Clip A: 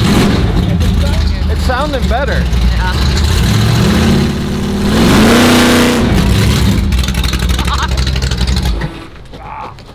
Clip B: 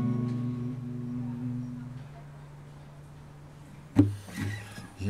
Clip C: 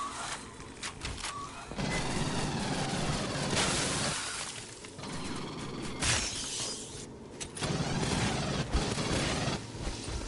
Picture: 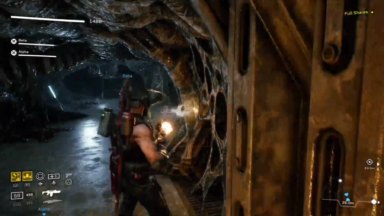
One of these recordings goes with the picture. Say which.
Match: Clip C